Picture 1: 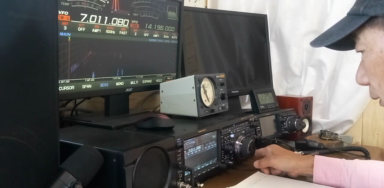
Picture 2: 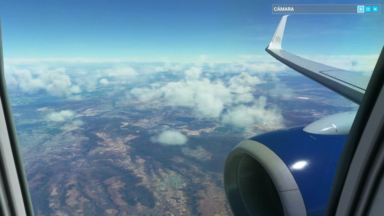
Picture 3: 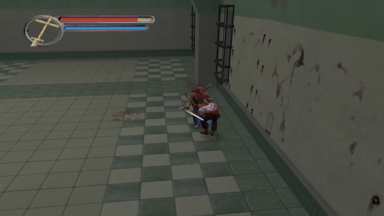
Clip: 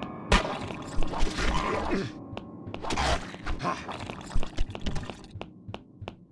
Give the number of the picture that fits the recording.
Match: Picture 3